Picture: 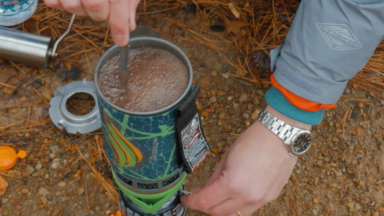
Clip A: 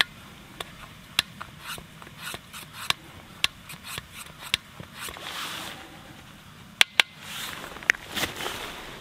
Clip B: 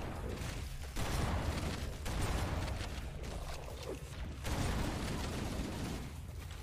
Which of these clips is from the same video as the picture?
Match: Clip A